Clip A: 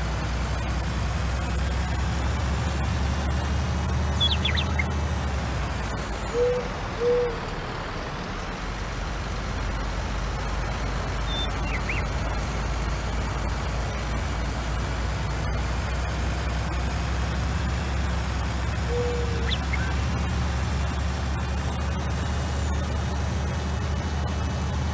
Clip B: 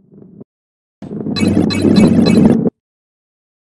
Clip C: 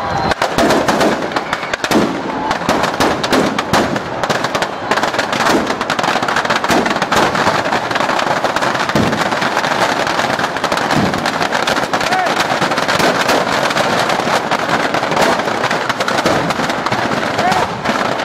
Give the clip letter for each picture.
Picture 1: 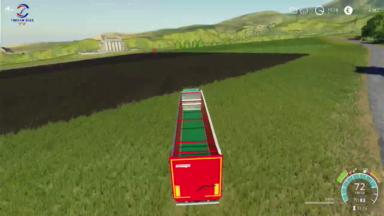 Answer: A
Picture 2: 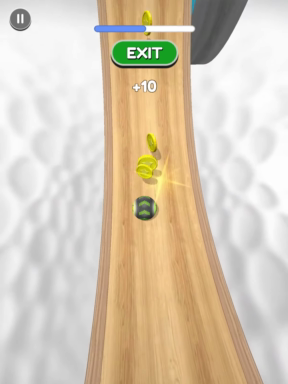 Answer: B